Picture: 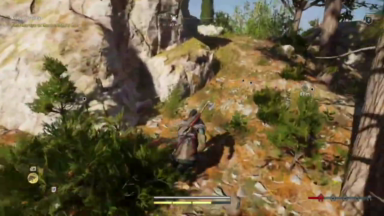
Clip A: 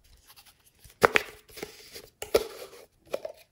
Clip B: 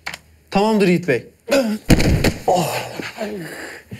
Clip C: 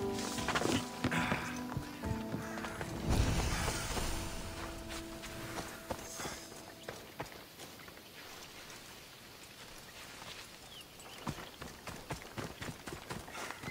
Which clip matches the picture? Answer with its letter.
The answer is C